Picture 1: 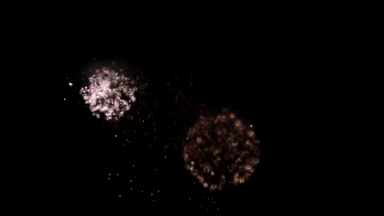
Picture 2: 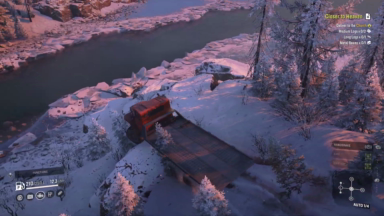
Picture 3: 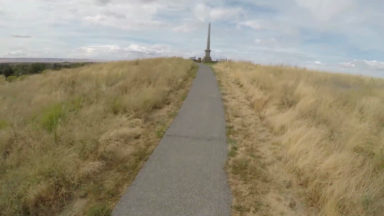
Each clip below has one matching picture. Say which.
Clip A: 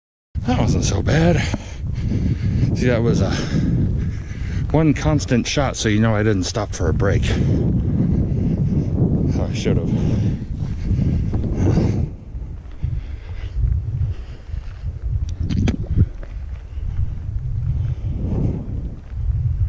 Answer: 3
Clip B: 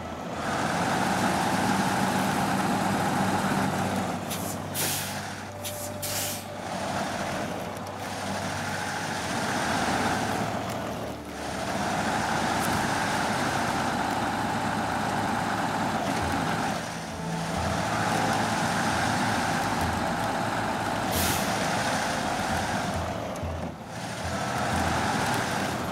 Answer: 2